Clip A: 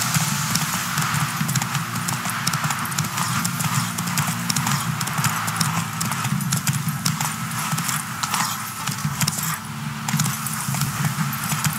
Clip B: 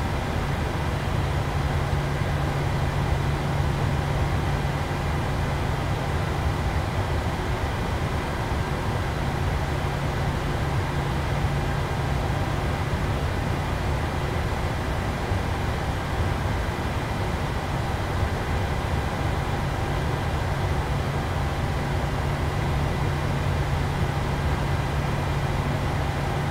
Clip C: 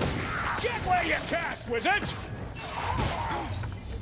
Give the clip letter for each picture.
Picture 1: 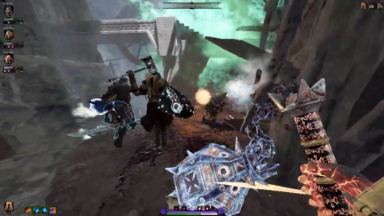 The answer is C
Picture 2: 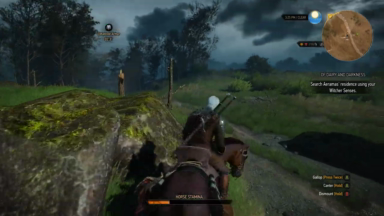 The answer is A